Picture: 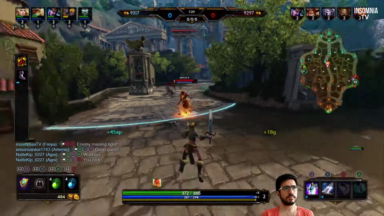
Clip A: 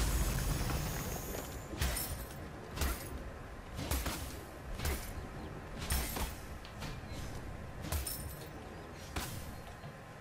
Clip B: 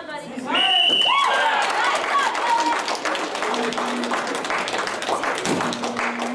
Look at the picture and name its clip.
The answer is A